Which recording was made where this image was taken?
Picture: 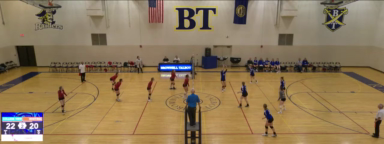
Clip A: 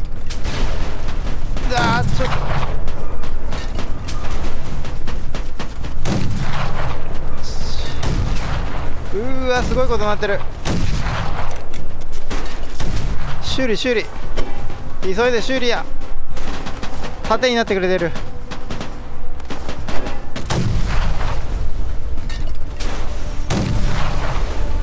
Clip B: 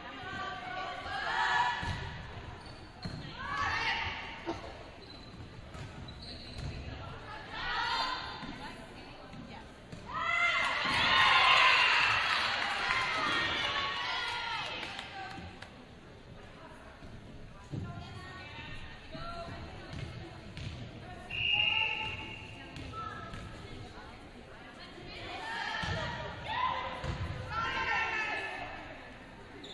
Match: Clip B